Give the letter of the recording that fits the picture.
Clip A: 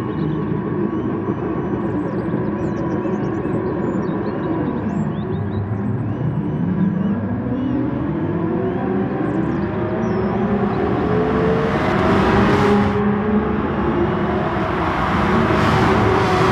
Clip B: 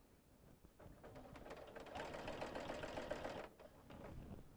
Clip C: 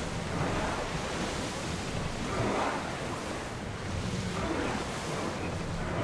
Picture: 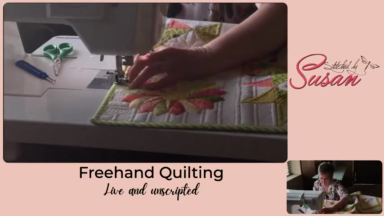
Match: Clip B